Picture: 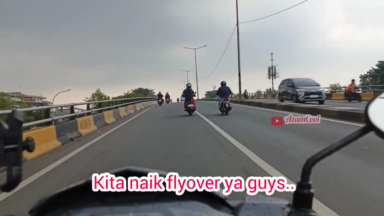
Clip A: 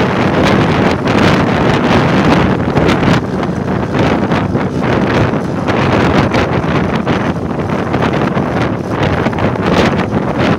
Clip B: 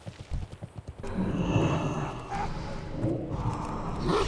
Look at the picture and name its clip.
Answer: A